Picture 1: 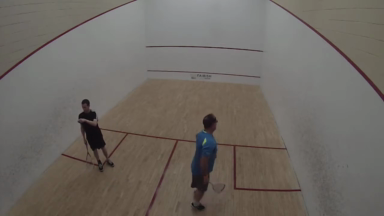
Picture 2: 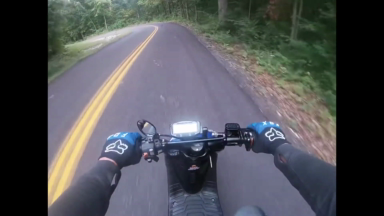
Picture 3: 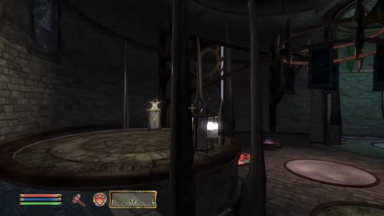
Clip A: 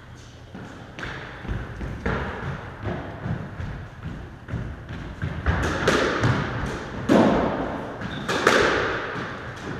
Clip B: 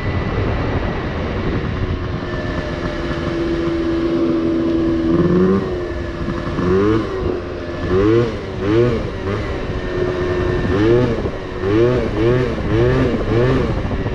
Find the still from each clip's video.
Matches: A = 1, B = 2